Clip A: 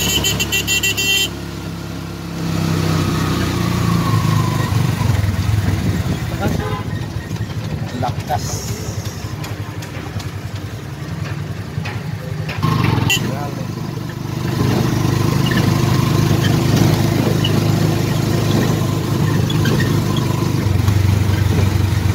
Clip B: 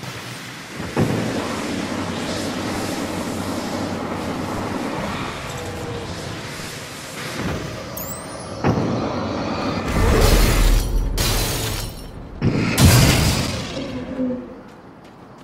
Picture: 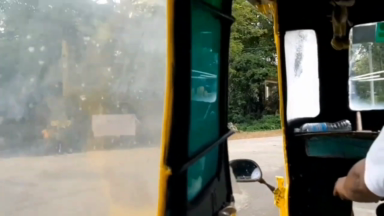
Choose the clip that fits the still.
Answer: A